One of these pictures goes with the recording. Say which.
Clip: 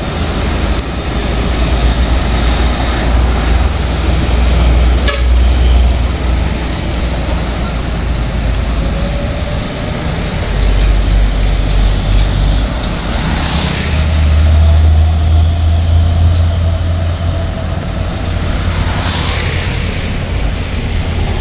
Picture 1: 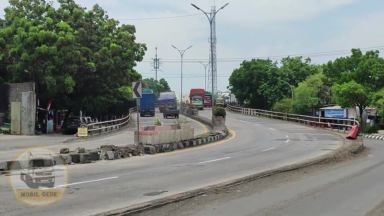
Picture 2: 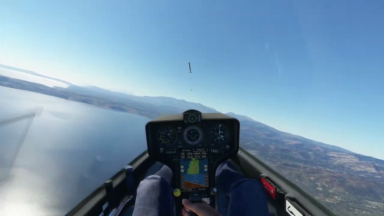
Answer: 1